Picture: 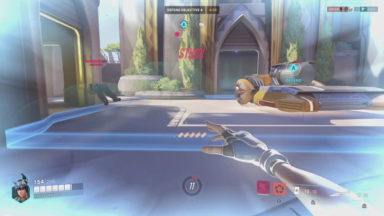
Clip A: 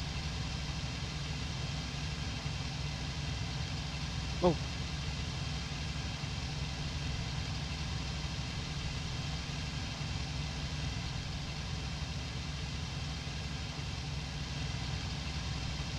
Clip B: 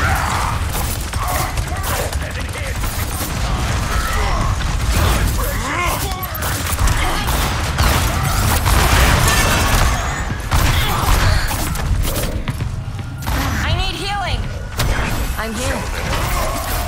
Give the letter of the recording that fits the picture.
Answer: B